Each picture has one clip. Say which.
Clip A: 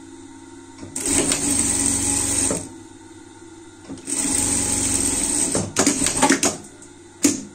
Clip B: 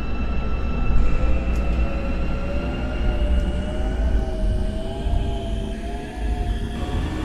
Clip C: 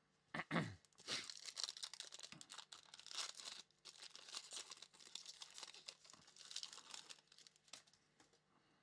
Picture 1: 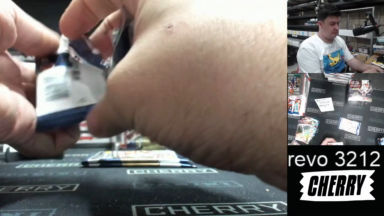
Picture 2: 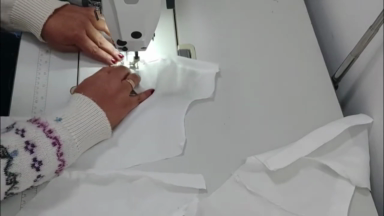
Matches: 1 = C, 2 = A